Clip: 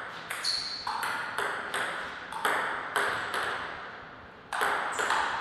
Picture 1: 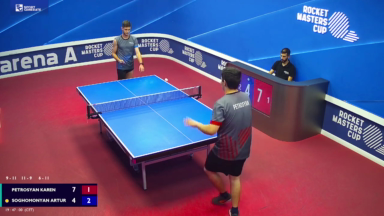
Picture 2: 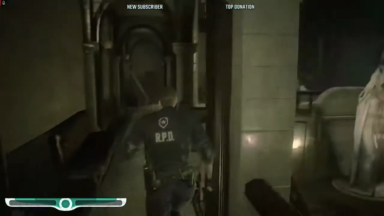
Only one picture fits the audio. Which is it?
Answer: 1